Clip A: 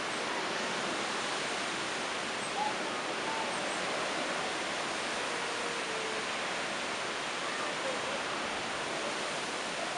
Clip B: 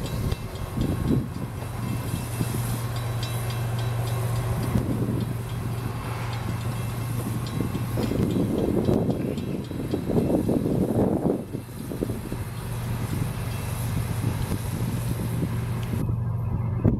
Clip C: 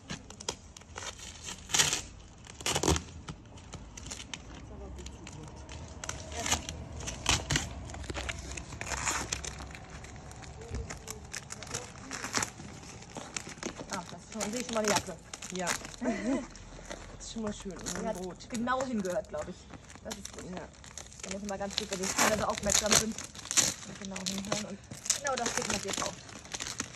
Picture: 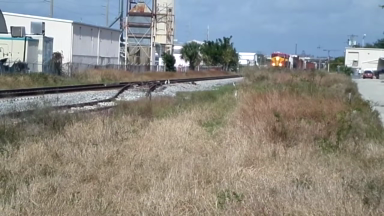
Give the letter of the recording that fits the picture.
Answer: B